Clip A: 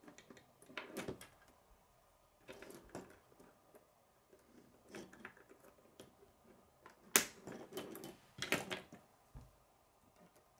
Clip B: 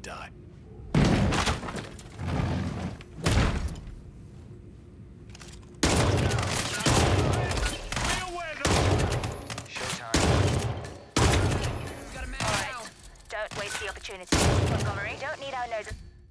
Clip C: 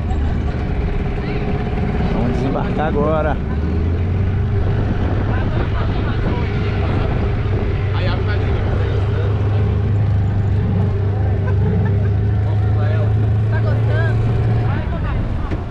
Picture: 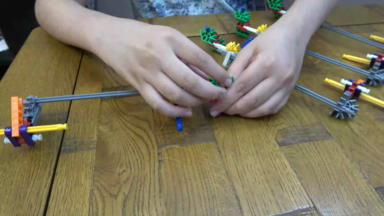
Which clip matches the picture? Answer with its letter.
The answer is A